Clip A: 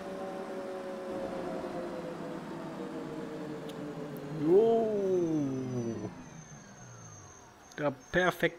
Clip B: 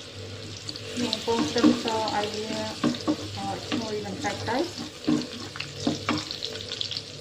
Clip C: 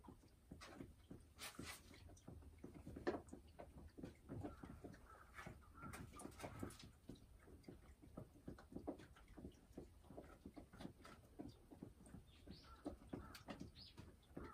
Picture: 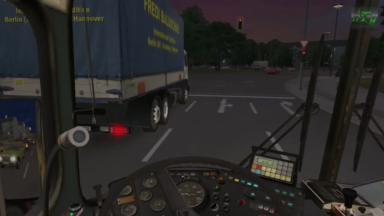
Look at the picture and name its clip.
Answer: A